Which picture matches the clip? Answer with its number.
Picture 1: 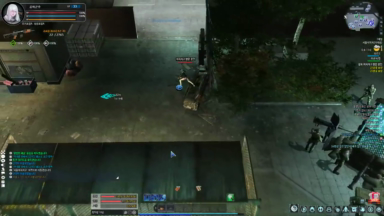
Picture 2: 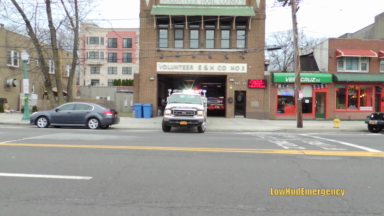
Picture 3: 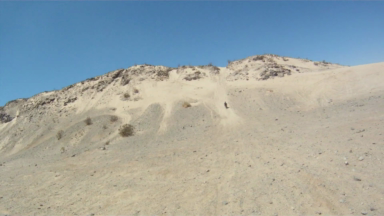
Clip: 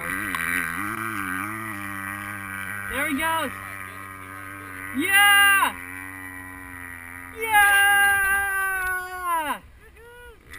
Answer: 3